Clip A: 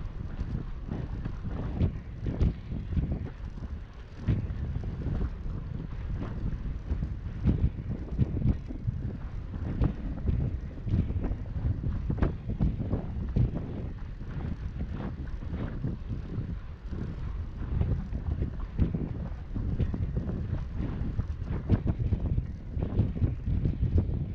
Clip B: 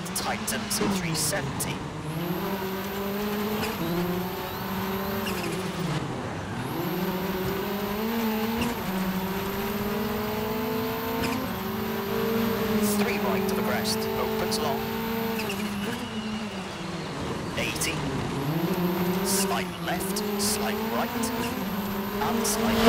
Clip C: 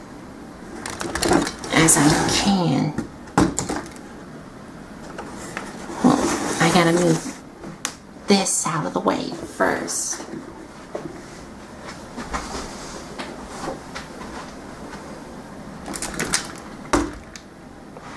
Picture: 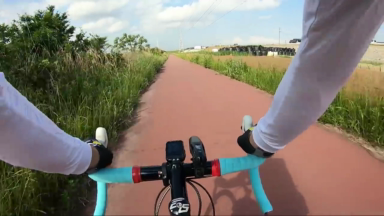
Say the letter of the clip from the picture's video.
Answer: A